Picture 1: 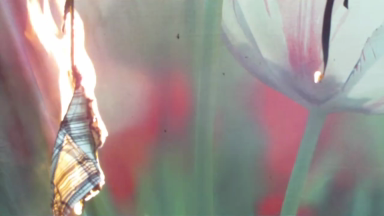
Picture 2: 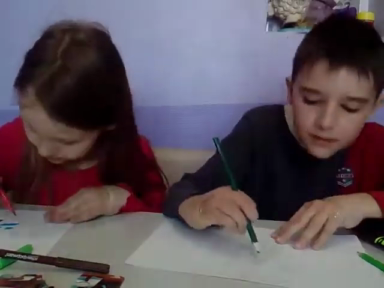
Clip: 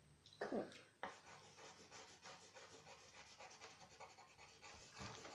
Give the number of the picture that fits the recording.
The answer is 2